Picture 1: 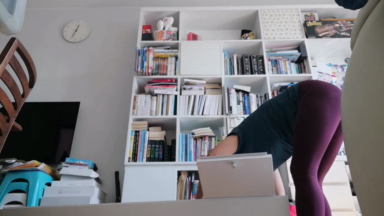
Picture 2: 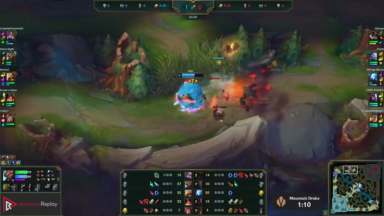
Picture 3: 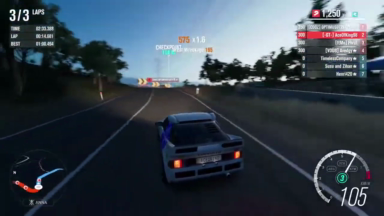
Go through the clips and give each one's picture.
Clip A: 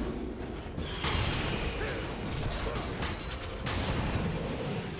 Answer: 2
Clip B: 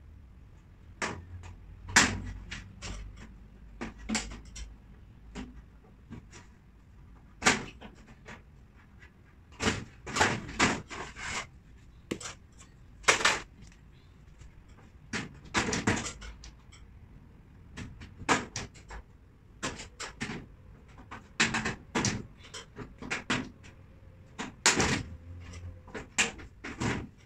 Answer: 1